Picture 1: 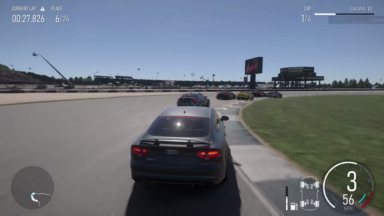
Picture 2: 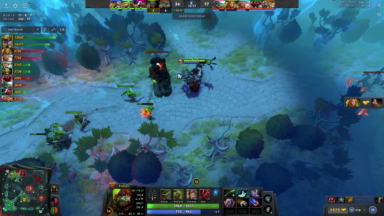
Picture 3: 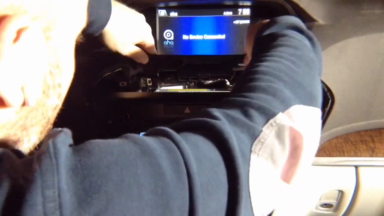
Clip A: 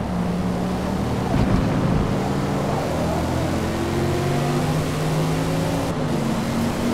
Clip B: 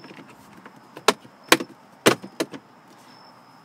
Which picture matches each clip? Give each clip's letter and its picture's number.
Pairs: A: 1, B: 3